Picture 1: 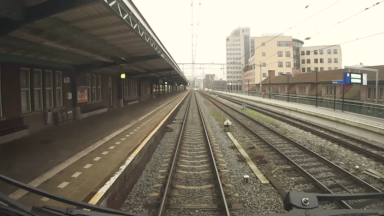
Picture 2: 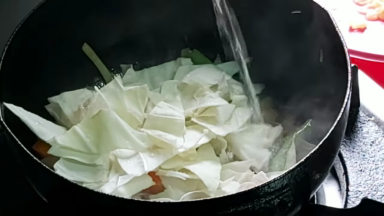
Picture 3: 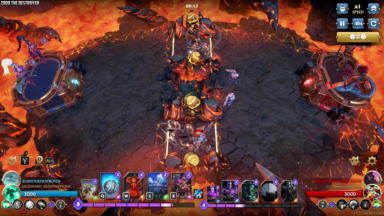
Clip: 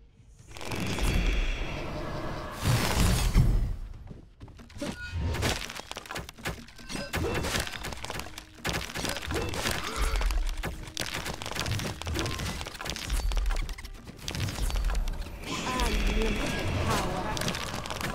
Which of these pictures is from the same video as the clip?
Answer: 3